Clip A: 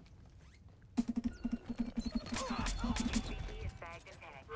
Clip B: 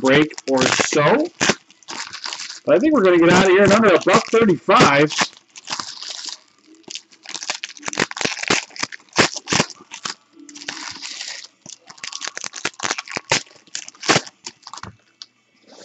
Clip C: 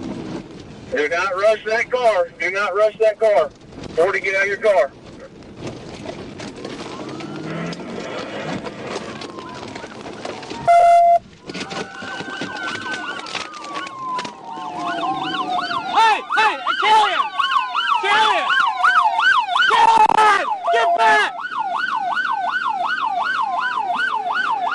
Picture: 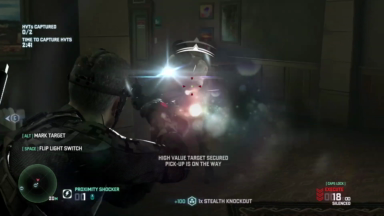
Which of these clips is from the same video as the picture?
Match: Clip A